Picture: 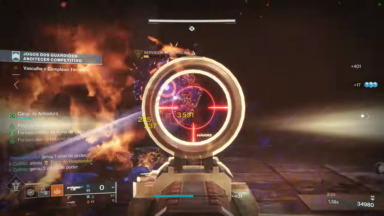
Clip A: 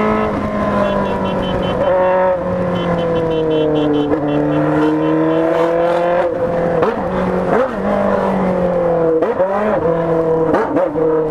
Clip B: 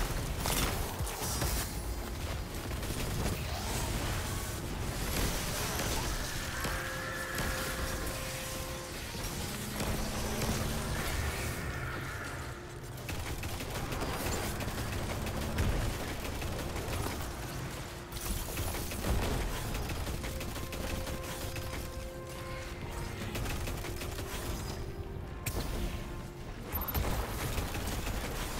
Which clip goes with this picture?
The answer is B